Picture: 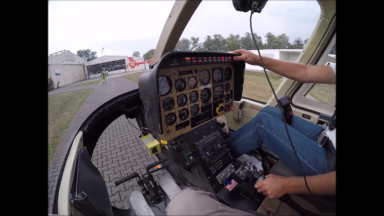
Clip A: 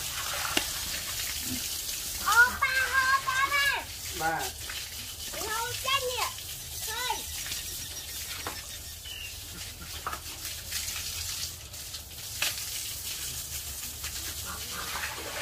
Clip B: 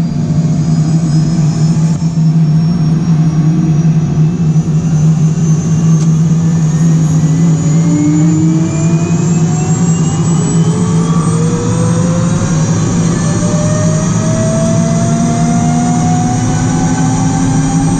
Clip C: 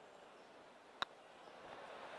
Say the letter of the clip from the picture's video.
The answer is B